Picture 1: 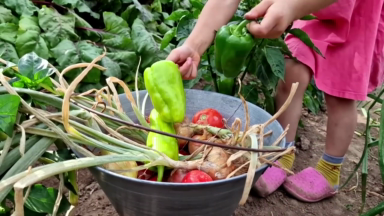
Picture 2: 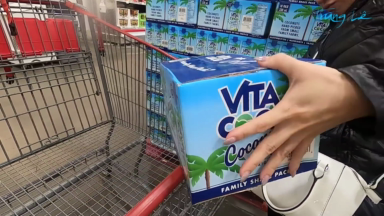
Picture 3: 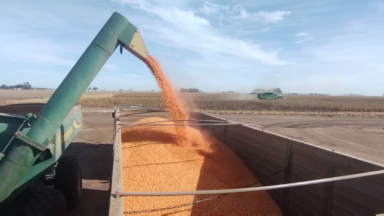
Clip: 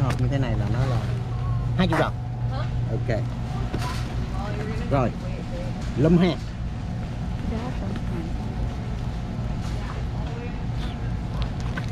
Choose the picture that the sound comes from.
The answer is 2